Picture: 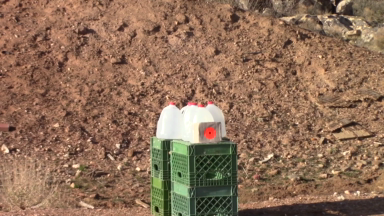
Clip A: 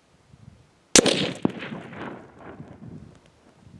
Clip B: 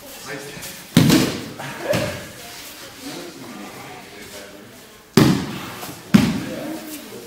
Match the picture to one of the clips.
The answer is A